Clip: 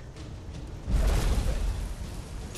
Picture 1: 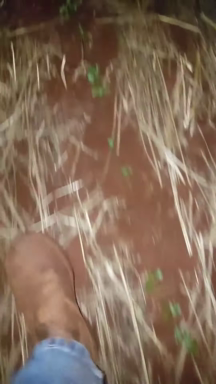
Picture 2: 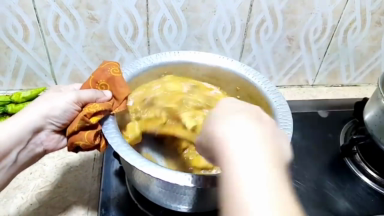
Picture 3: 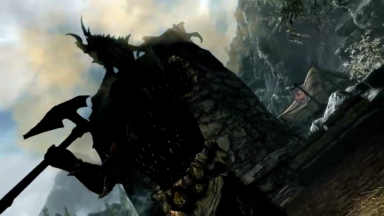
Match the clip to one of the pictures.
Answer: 3